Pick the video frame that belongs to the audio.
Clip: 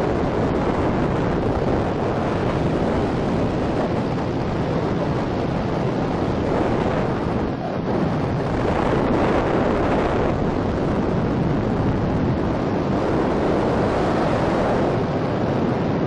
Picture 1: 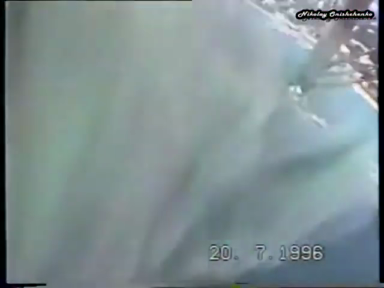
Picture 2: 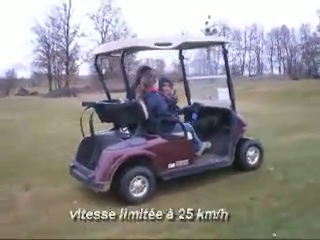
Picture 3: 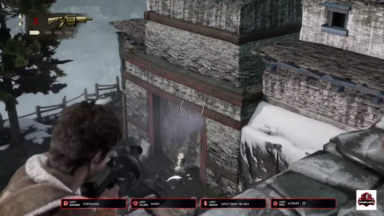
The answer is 1